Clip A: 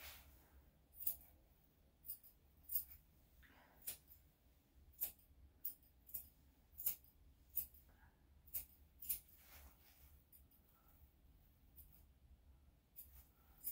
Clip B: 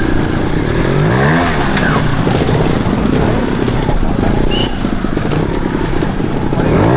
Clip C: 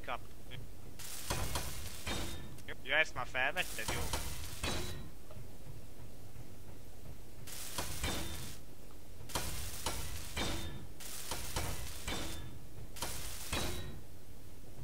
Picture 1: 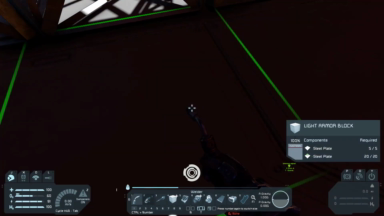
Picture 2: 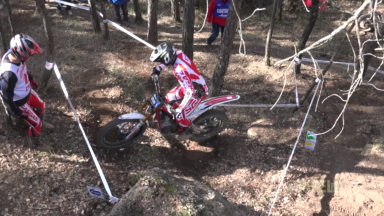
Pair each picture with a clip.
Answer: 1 C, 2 B